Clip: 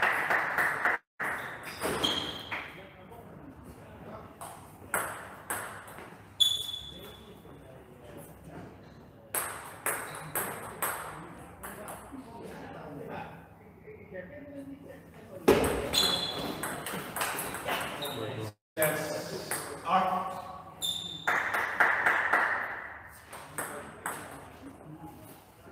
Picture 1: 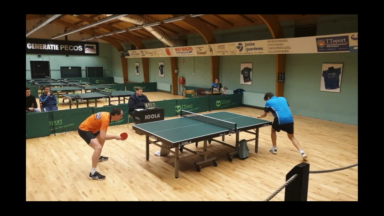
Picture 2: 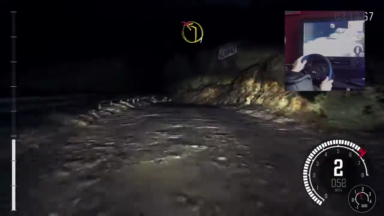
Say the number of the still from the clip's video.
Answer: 1